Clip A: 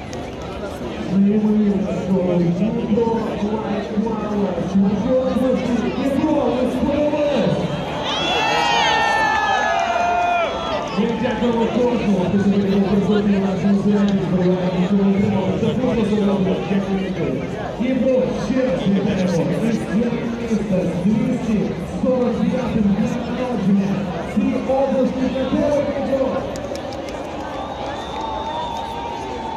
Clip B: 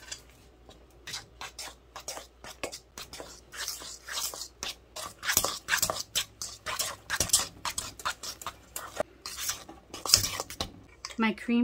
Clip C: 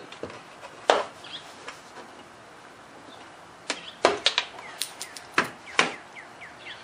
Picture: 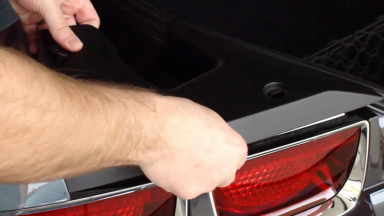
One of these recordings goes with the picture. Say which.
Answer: C